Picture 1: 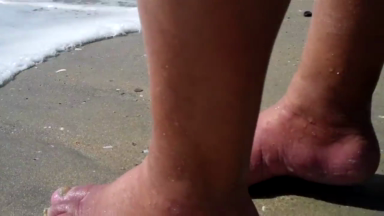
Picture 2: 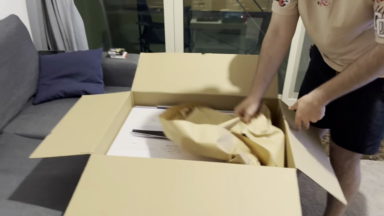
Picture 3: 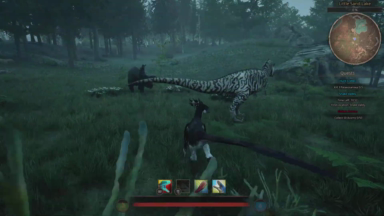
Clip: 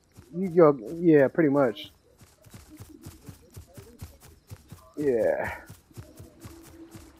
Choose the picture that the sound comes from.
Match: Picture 3